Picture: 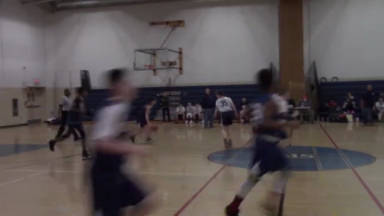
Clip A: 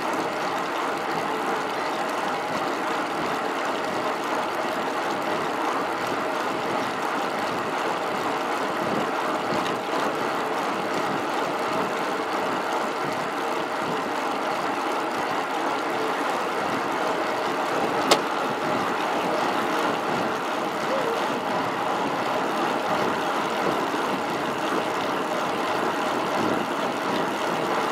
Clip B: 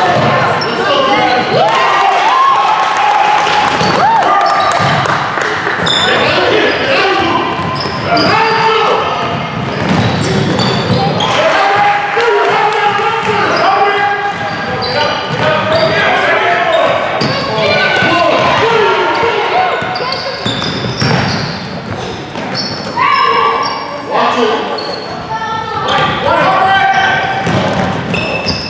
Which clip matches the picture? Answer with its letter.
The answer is B